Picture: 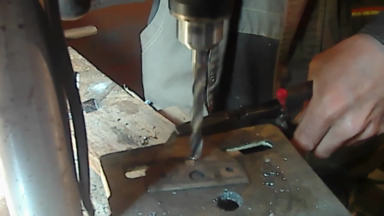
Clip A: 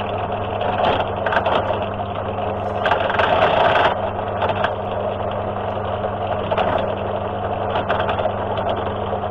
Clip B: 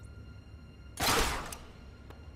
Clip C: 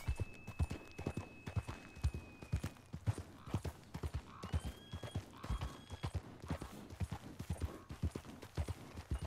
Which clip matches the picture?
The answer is A